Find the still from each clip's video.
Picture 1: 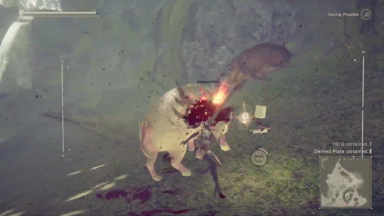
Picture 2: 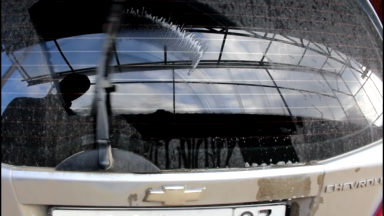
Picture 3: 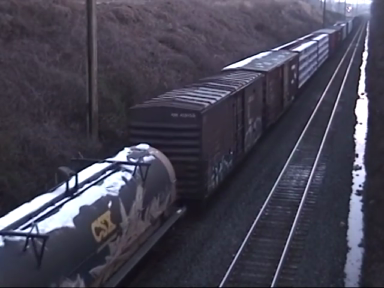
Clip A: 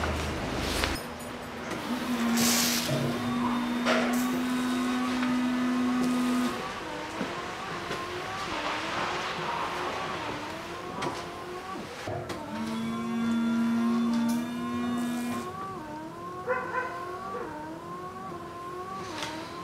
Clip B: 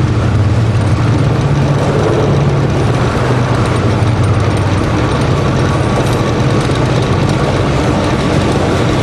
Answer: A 2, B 3